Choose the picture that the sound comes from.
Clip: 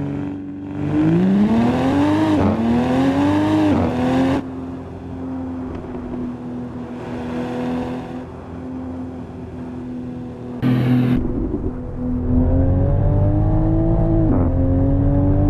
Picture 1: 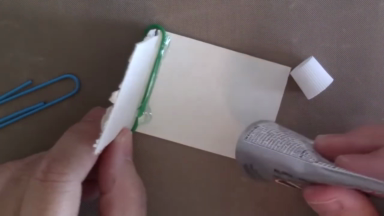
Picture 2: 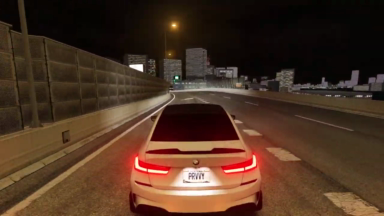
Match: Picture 2